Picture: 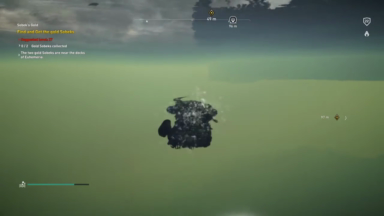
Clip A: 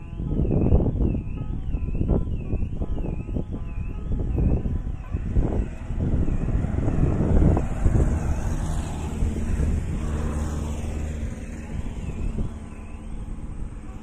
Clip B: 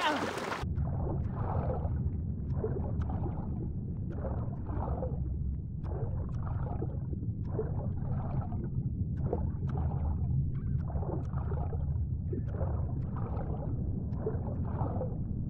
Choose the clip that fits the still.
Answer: B